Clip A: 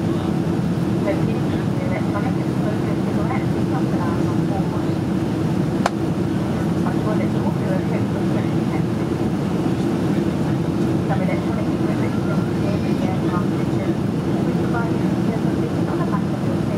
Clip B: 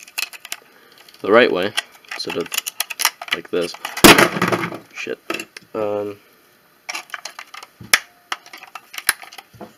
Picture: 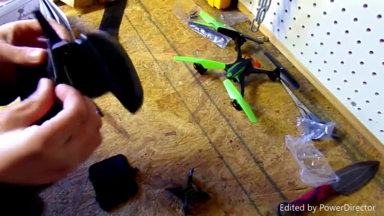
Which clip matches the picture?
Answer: B